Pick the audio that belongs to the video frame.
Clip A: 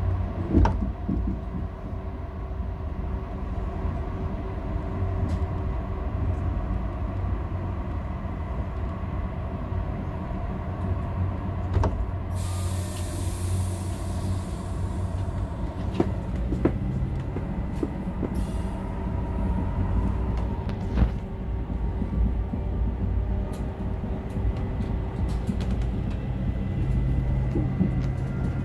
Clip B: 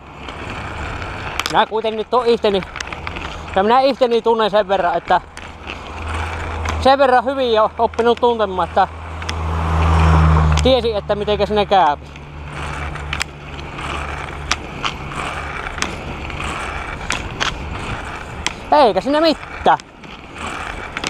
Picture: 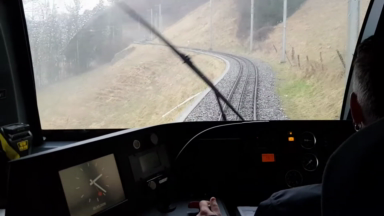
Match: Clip A